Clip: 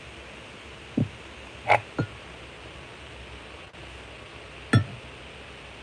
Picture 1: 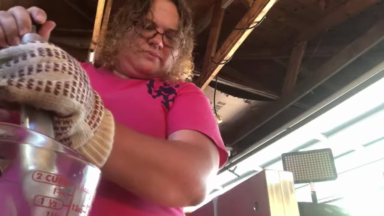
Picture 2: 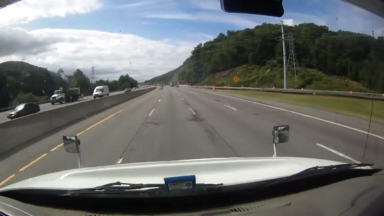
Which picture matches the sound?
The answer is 1